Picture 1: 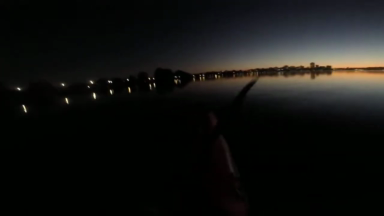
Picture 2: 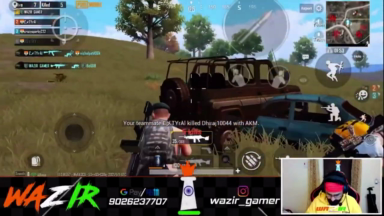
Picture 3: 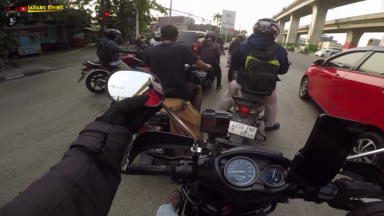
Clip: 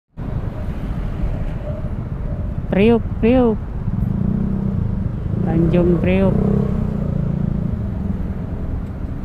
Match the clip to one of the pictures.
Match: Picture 3